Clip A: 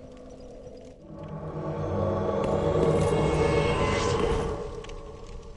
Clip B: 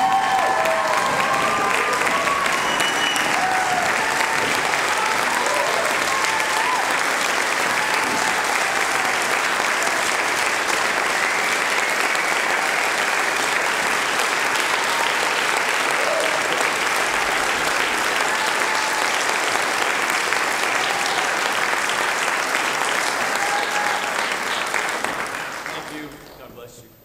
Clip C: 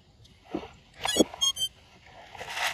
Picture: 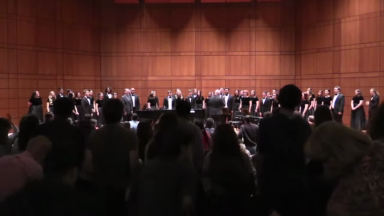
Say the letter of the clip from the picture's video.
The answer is B